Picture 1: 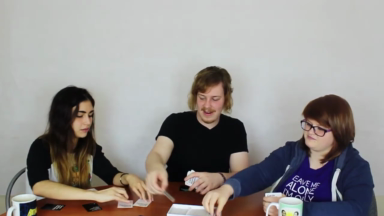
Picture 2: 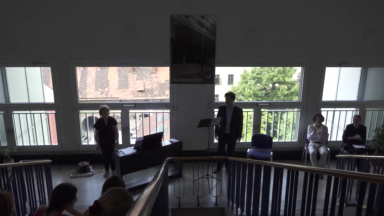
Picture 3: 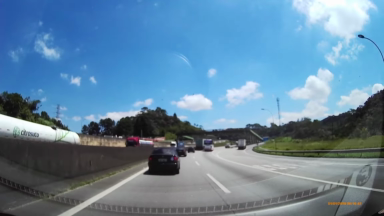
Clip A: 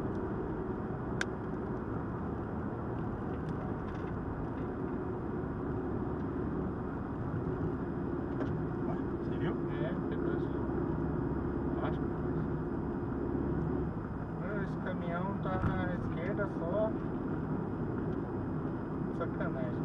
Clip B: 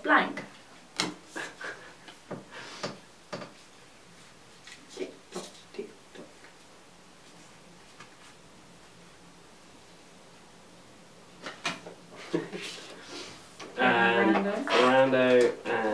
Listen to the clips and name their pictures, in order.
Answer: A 3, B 1